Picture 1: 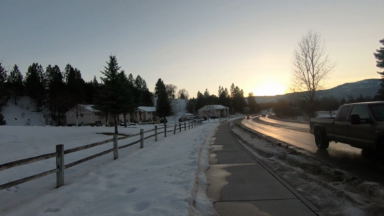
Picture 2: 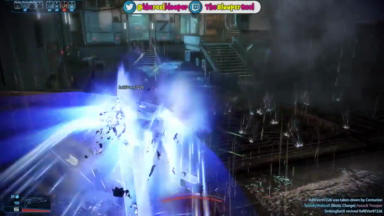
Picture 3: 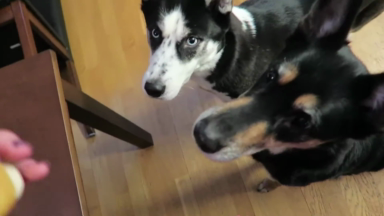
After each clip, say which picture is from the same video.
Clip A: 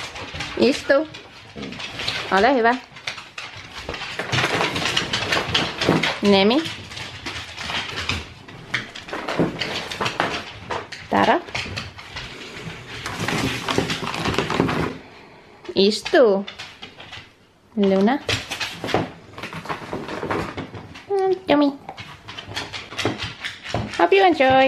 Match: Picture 3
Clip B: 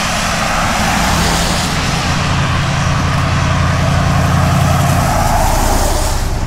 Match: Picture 1